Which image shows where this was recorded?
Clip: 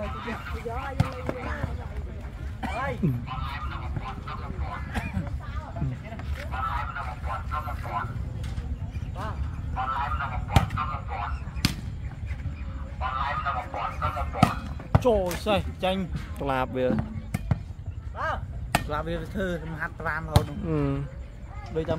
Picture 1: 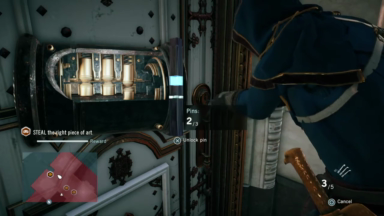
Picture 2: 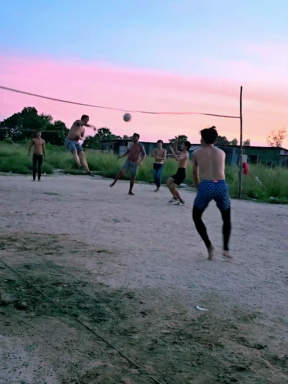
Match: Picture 2